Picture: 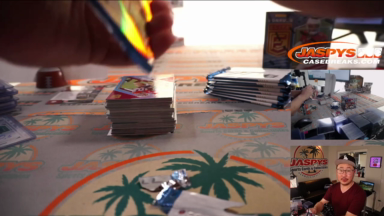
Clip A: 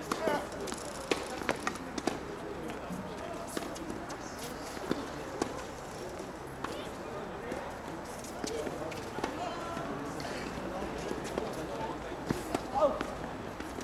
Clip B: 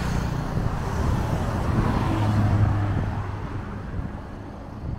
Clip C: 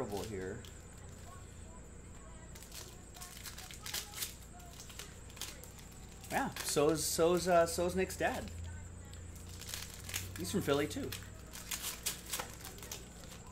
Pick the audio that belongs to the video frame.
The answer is C